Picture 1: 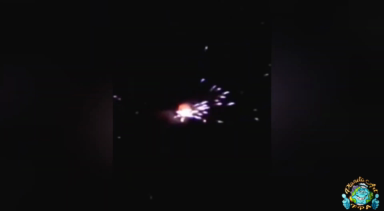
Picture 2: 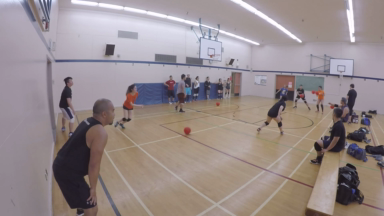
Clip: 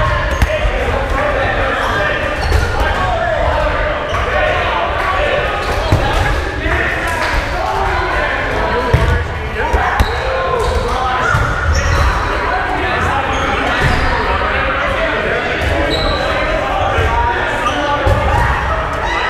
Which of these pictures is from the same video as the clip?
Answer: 2